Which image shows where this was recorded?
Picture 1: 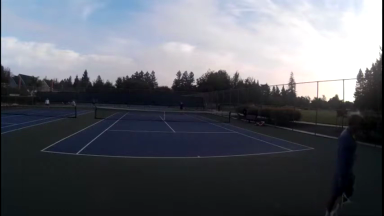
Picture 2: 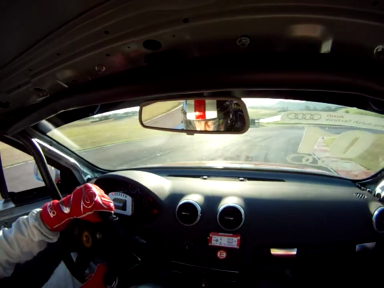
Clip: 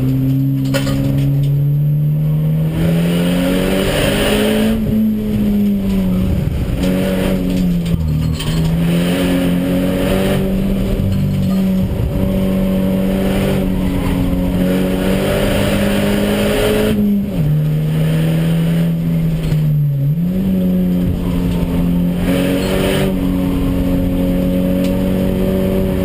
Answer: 2